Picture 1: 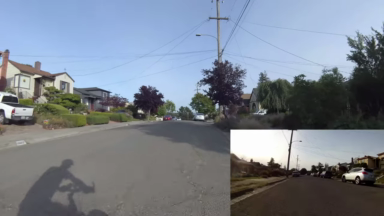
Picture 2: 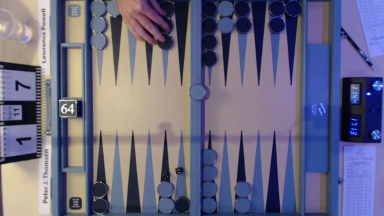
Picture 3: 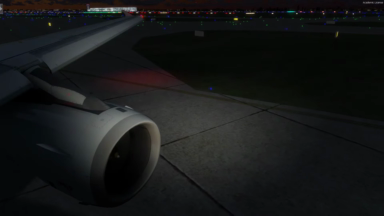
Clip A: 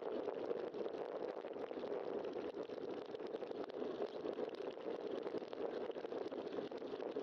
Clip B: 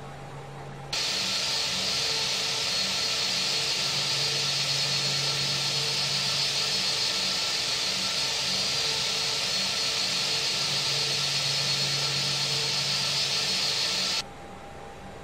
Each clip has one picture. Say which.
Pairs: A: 1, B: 3